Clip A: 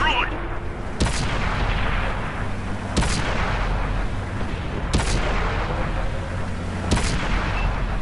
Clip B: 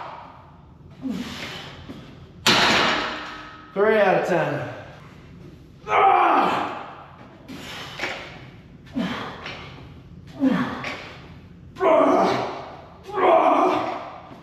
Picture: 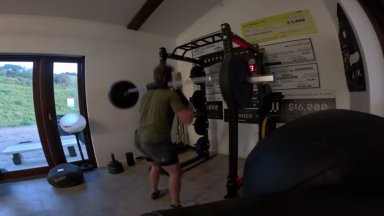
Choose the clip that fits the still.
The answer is B